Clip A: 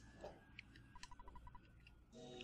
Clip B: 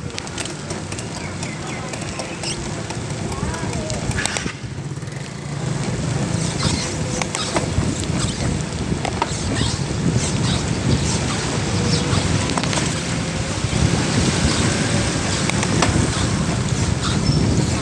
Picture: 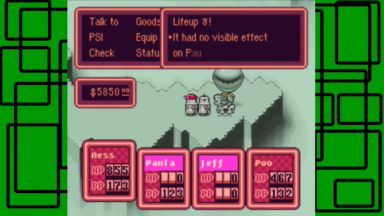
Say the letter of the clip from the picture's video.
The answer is A